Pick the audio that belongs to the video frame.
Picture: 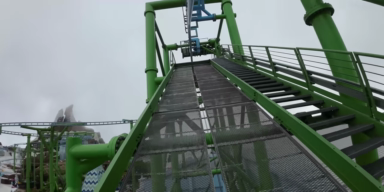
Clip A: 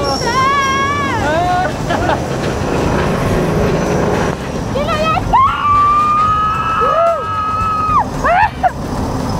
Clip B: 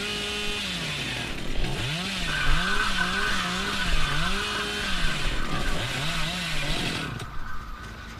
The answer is A